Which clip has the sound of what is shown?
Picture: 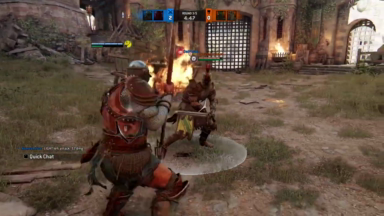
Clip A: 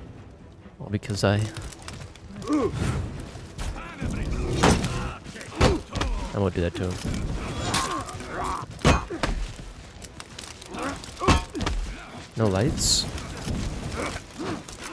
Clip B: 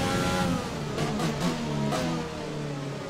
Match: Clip A